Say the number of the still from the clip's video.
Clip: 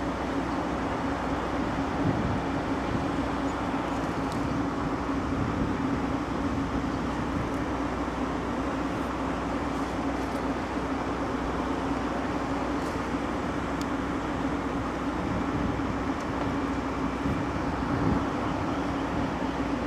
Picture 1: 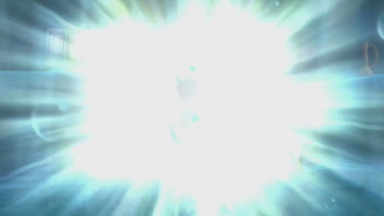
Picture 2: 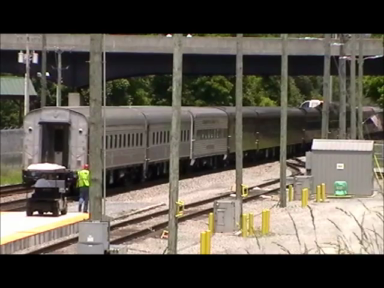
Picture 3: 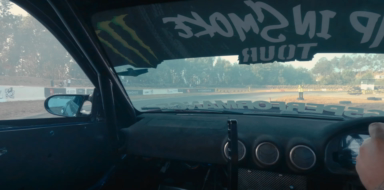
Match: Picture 2